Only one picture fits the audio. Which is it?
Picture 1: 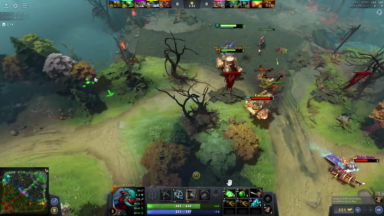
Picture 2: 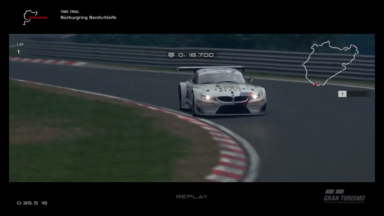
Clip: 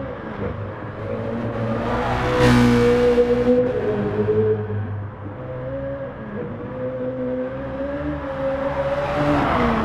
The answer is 2